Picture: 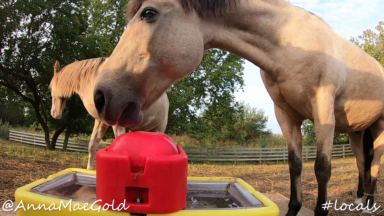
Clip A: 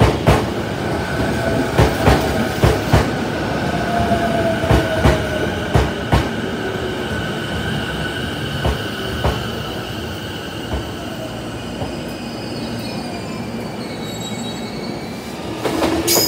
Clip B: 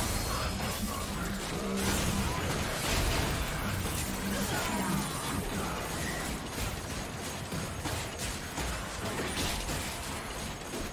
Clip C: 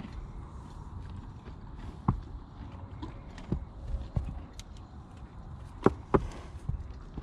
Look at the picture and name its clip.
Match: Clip C